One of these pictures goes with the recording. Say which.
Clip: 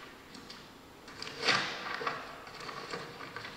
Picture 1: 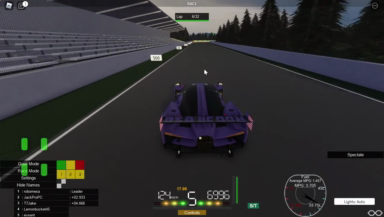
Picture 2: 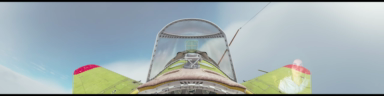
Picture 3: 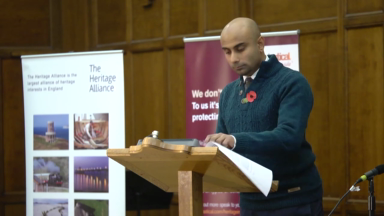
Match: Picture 3